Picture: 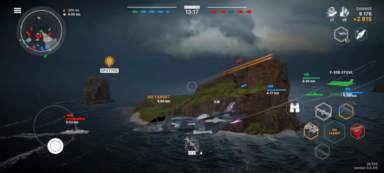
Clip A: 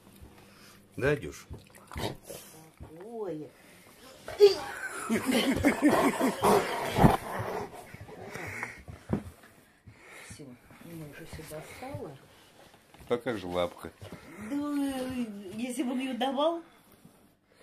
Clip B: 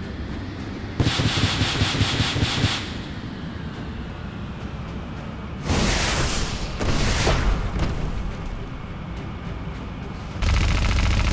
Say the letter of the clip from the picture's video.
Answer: B